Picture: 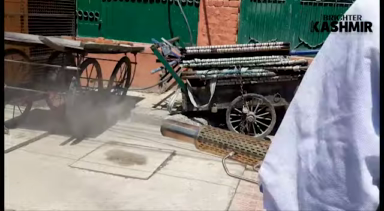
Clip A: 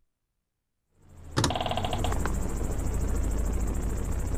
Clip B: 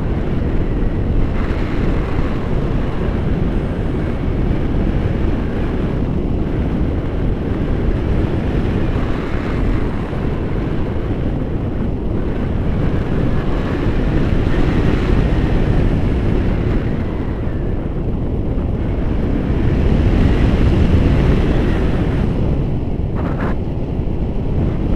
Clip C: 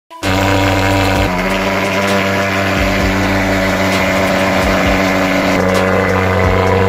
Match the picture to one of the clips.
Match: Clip C